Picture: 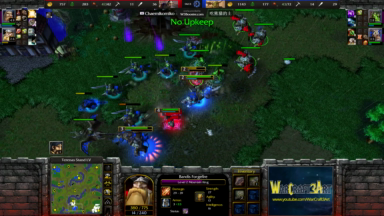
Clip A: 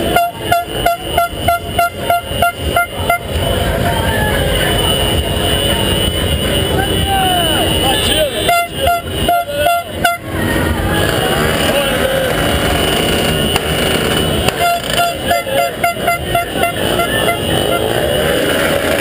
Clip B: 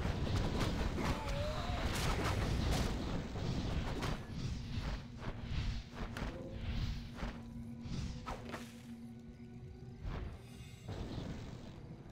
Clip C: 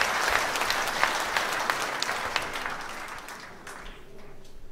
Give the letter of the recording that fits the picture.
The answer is B